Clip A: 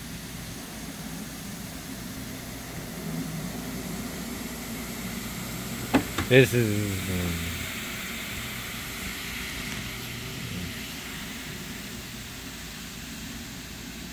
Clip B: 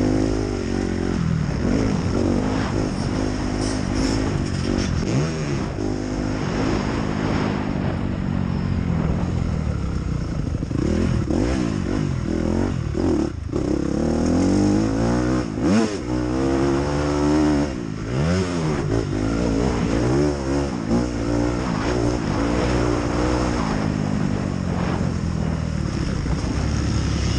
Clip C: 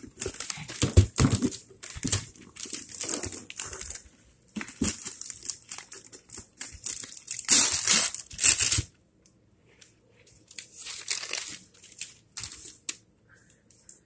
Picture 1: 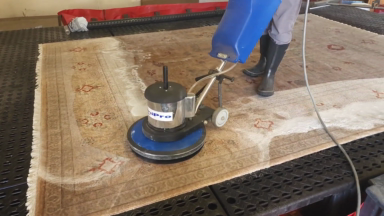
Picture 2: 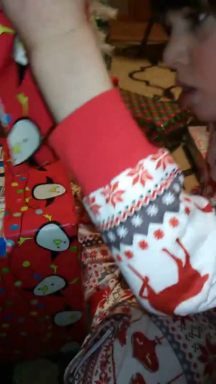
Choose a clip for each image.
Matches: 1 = A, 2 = C